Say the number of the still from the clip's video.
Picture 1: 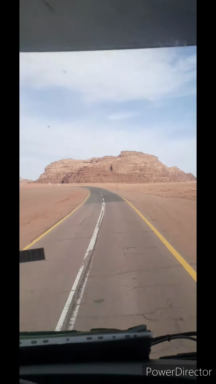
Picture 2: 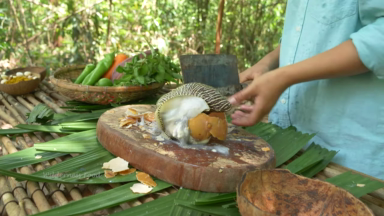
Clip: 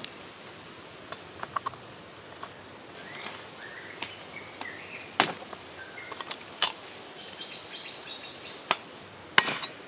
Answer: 2